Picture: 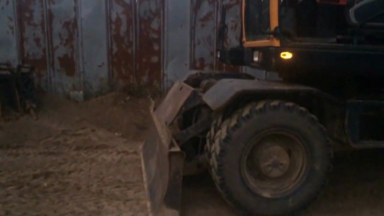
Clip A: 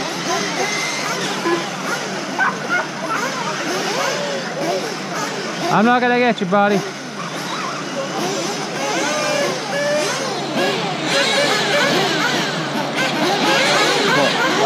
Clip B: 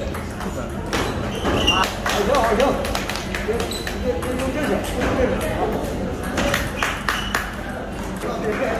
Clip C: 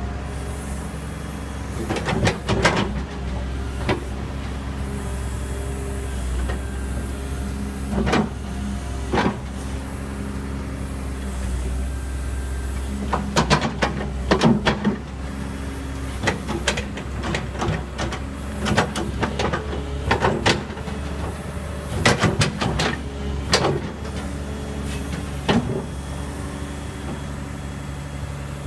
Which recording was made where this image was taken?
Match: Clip C